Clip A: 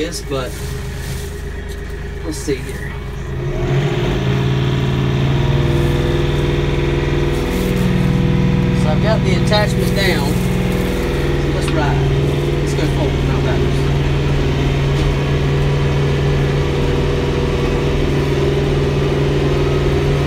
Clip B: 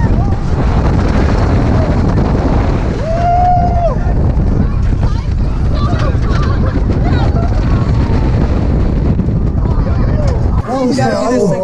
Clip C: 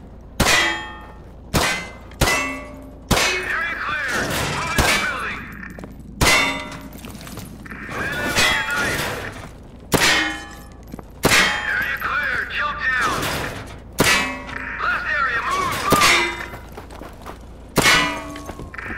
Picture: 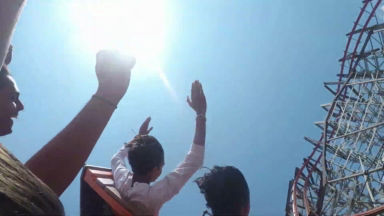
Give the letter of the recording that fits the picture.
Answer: B